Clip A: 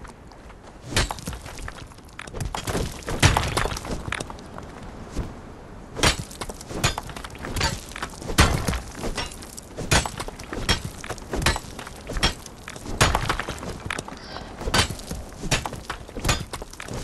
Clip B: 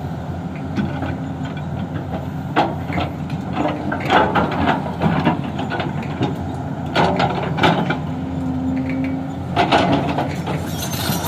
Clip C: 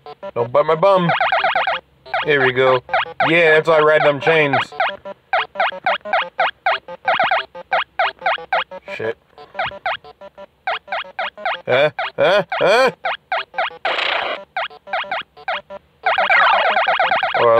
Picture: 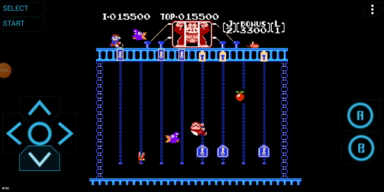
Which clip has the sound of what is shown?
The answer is C